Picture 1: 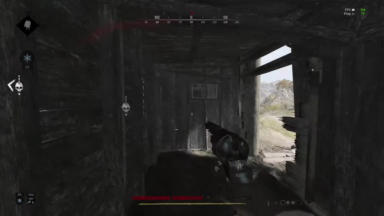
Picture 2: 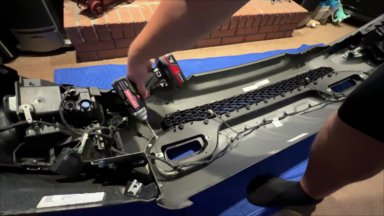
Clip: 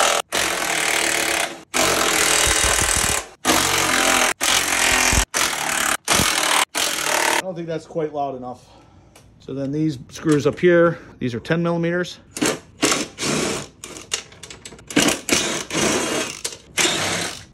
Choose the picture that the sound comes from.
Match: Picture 2